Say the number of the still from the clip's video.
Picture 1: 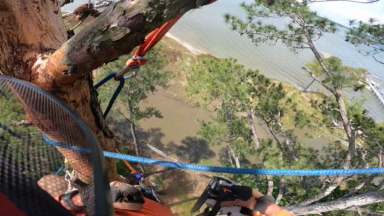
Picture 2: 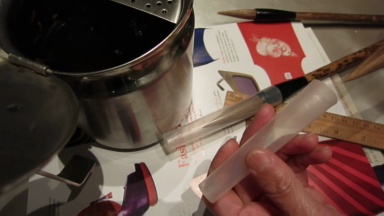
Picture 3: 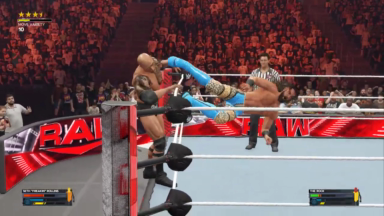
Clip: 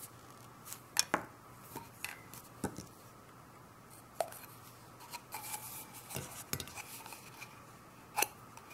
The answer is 2